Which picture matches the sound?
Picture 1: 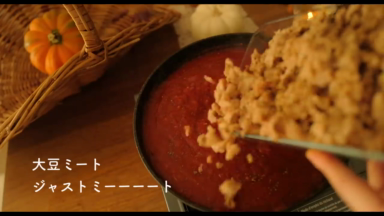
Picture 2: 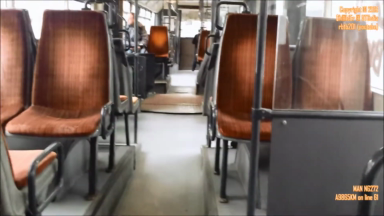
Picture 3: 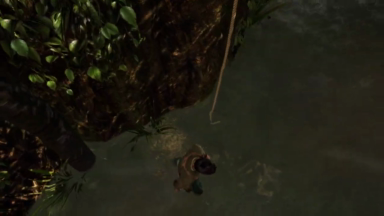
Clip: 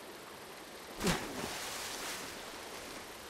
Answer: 3